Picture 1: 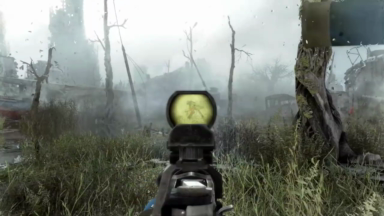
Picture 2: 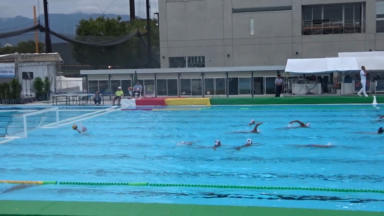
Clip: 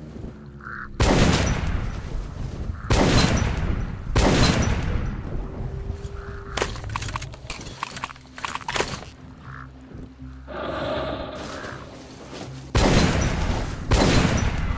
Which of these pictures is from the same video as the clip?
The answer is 1